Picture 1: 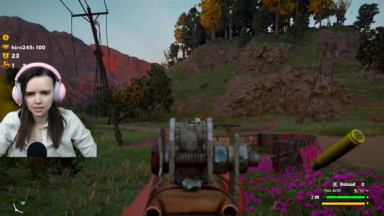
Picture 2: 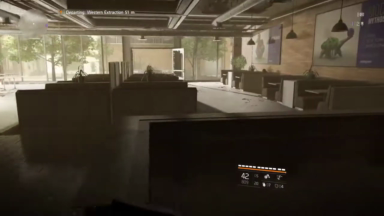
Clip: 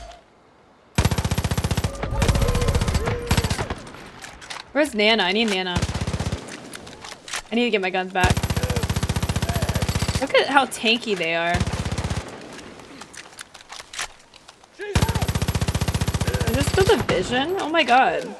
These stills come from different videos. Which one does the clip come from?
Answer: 1